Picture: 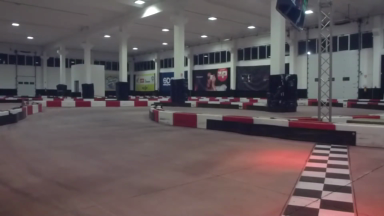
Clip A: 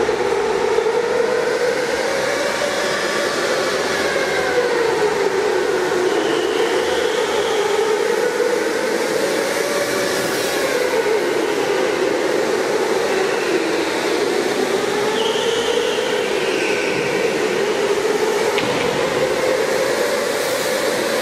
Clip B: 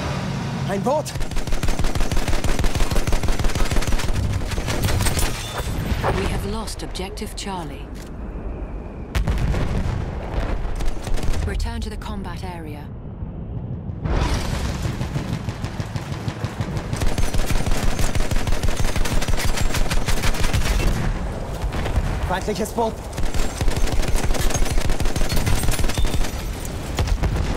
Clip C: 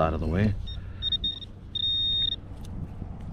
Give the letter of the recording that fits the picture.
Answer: A